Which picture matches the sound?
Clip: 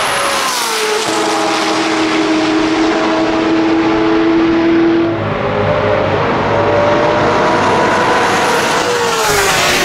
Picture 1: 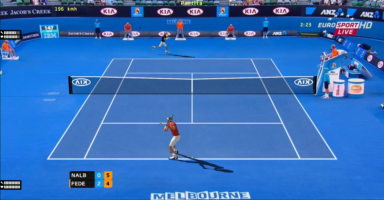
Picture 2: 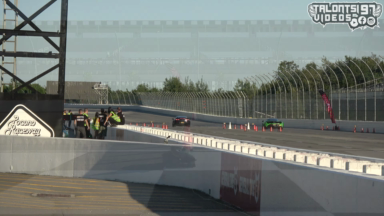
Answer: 2